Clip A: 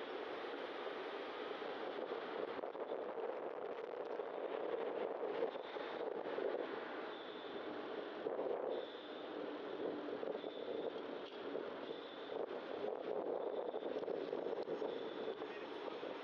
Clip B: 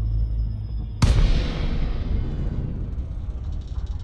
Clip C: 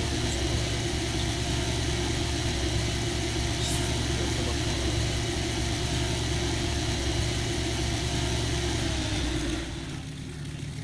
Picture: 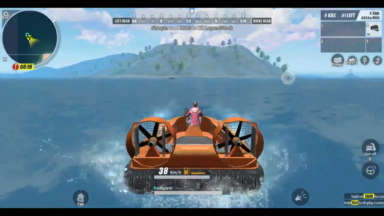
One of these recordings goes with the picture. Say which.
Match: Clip C